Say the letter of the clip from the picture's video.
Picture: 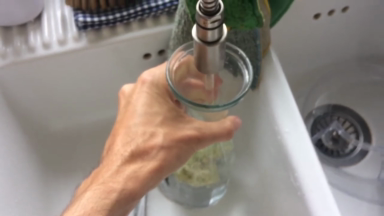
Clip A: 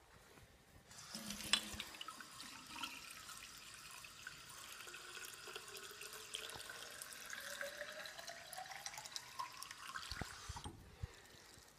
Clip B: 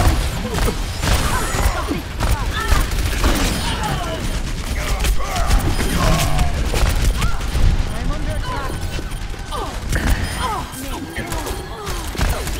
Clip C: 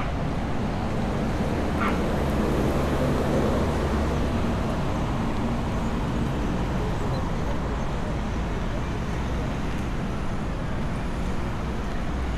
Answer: A